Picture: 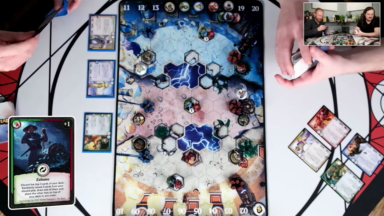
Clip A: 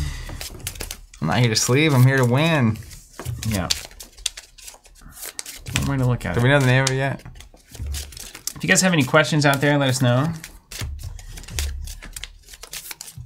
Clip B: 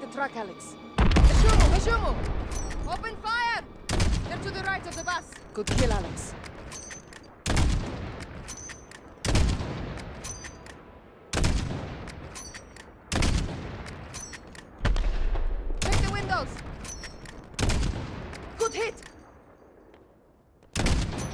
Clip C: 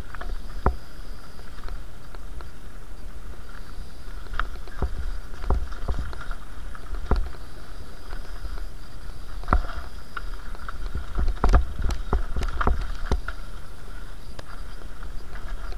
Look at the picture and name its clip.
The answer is A